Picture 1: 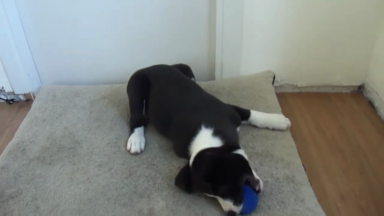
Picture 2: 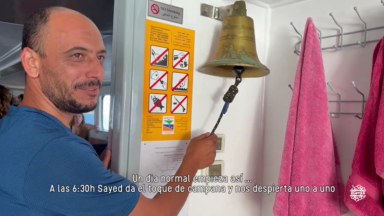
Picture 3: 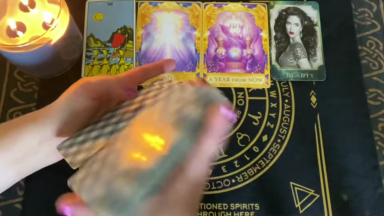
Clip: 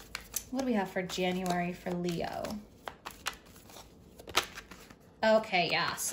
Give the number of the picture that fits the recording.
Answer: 3